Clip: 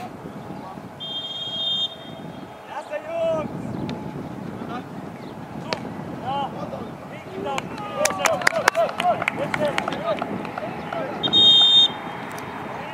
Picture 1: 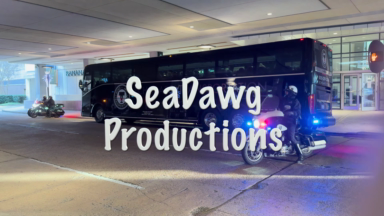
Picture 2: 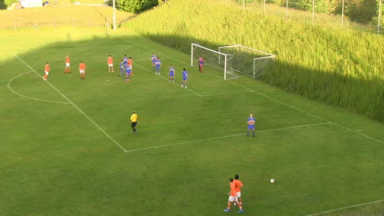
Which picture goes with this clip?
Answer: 2